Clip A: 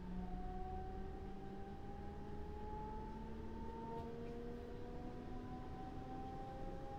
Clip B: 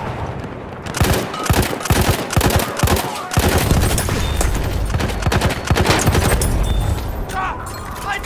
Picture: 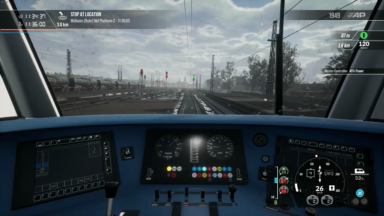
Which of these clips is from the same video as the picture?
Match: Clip A